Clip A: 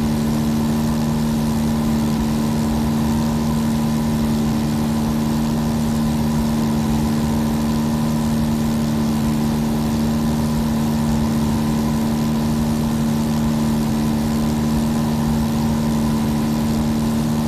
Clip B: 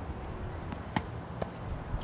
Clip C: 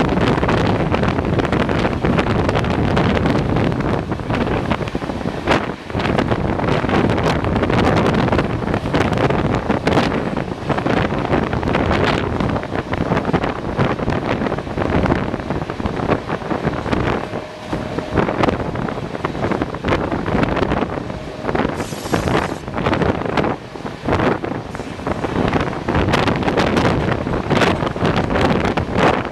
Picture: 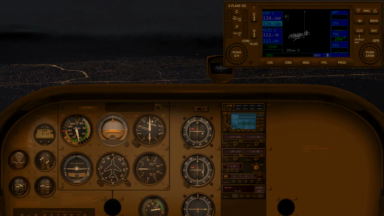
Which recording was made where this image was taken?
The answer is A